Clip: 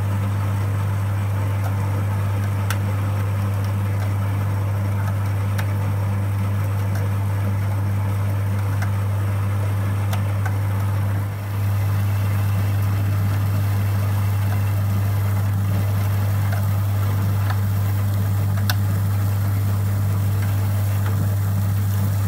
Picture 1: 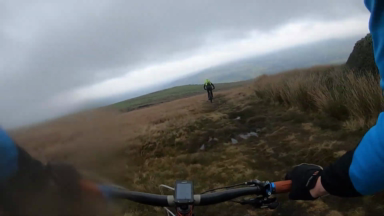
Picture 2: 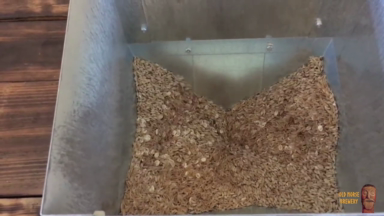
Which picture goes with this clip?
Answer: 2